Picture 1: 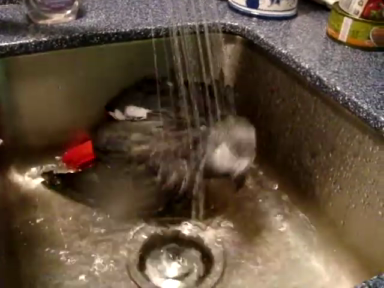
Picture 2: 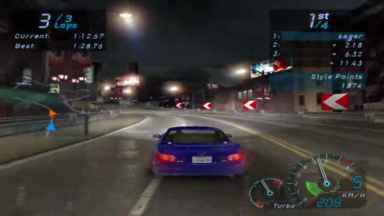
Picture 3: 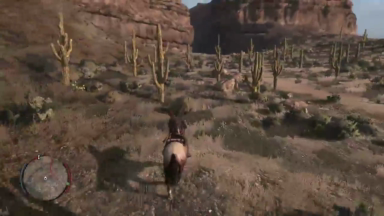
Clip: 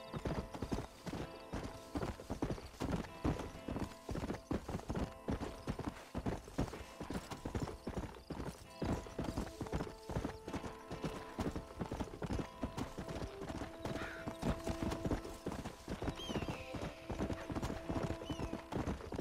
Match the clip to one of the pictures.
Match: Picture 3